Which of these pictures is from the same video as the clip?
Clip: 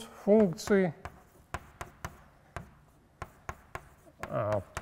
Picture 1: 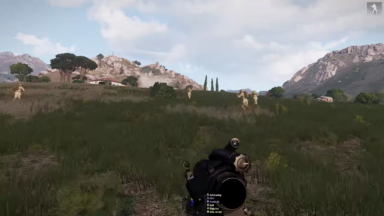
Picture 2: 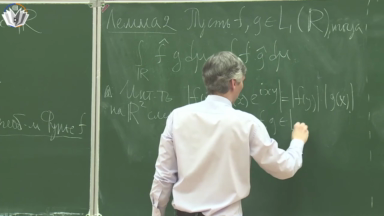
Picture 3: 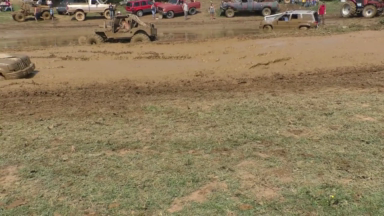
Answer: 2